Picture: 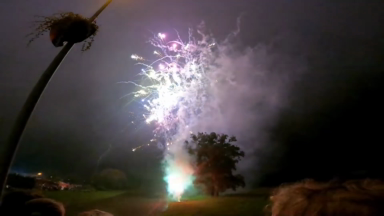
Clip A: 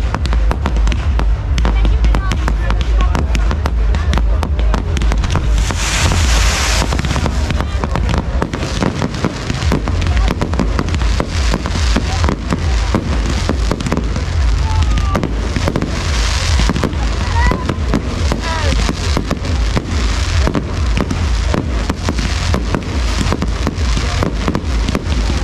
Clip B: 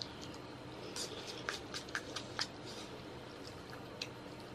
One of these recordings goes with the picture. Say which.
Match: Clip A